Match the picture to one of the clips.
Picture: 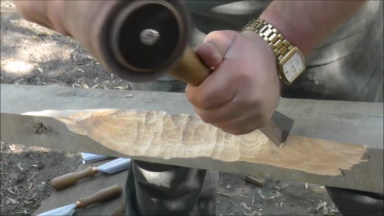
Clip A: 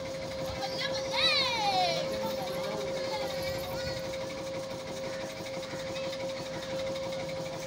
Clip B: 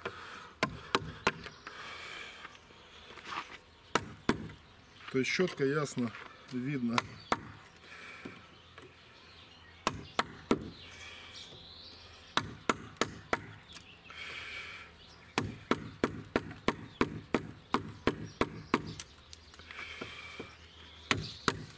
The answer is B